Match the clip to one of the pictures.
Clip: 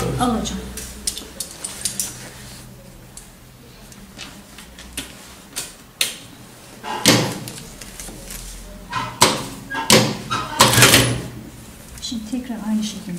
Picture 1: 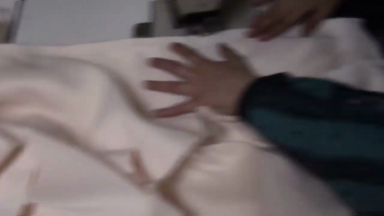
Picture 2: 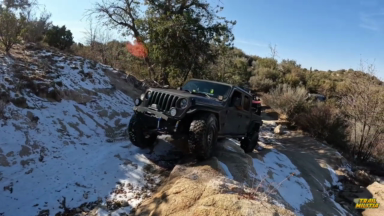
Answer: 1